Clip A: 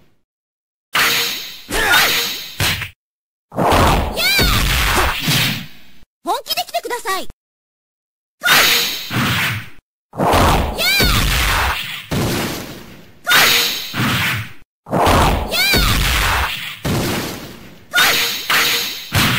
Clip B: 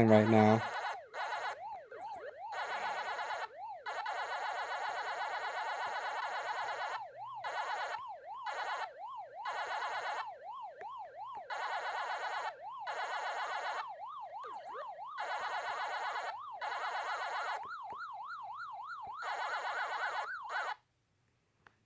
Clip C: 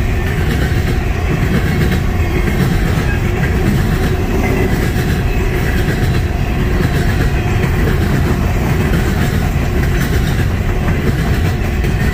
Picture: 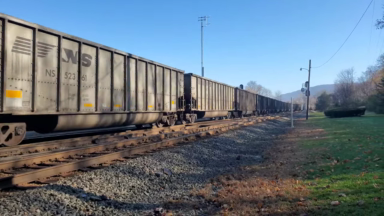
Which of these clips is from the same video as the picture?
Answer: C